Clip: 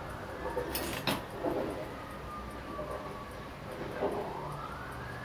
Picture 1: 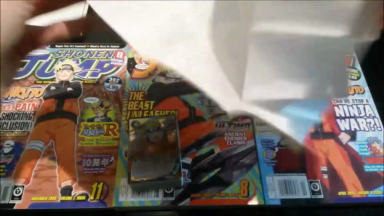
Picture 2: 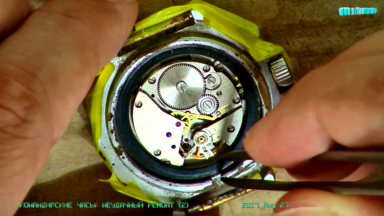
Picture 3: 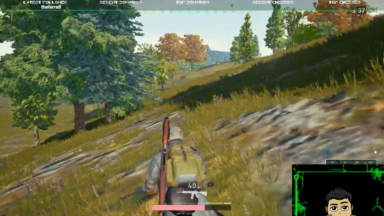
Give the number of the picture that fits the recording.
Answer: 2